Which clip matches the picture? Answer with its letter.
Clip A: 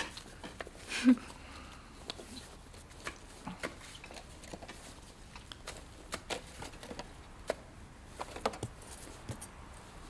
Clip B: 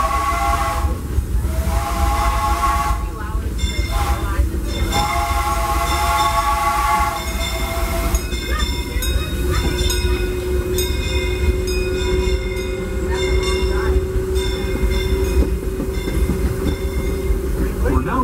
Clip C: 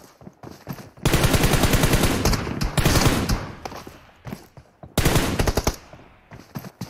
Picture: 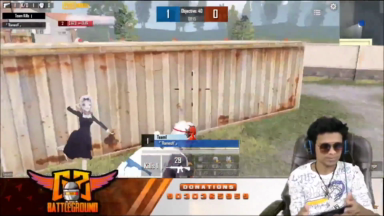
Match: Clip C